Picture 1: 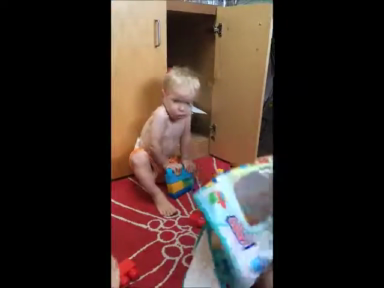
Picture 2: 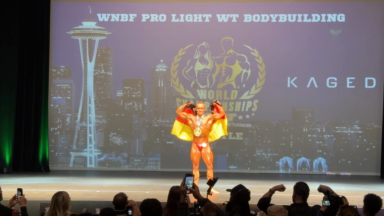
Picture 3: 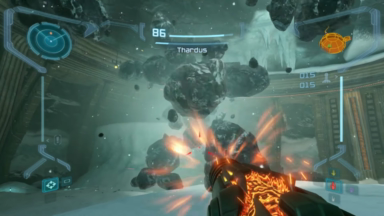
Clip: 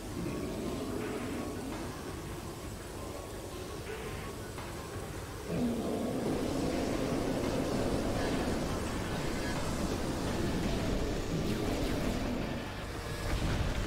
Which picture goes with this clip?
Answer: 3